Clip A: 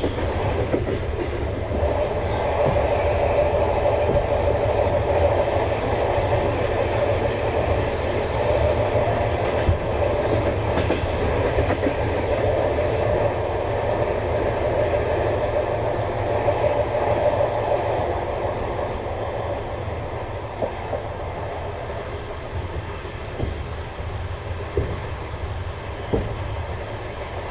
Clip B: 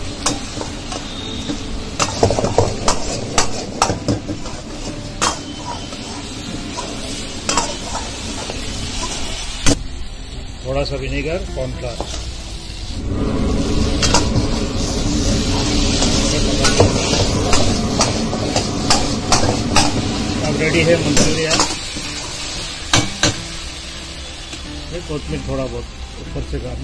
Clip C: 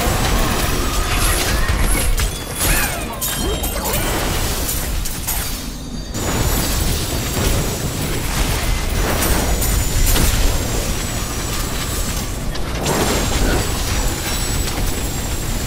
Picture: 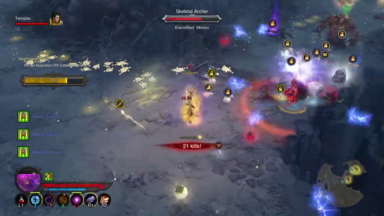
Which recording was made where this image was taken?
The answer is C